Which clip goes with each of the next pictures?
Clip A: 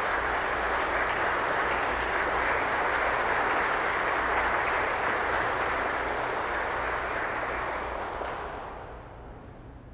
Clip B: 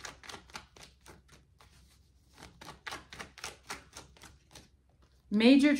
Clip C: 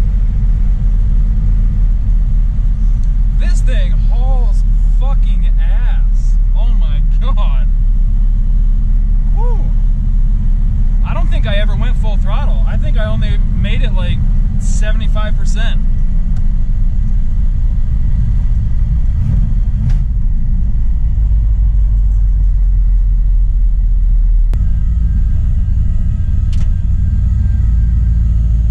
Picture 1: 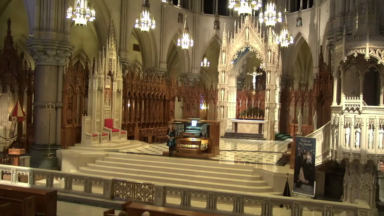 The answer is A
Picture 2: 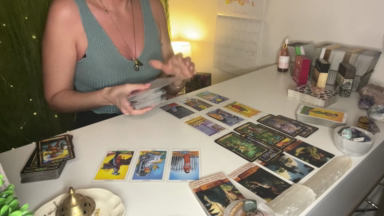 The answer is B